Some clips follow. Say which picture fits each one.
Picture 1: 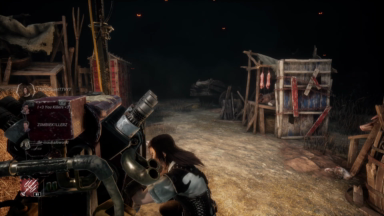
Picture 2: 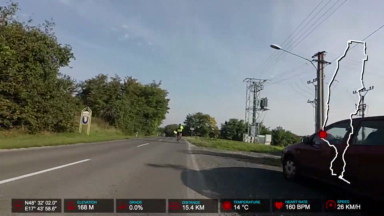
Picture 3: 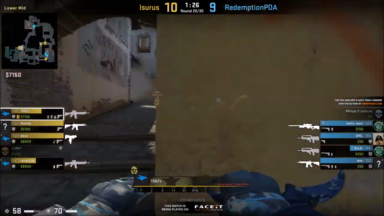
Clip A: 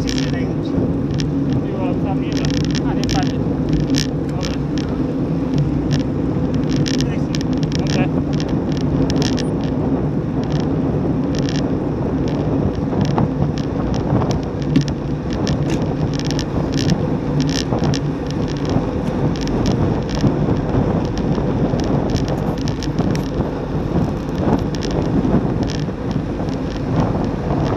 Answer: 2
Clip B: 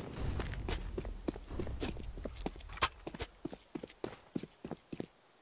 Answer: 3